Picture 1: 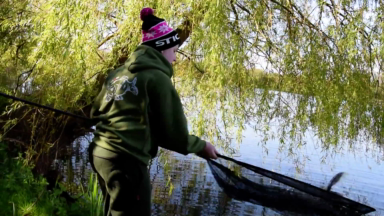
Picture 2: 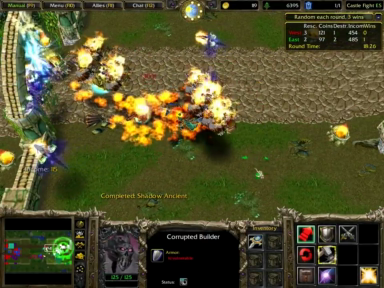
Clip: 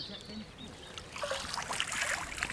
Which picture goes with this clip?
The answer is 1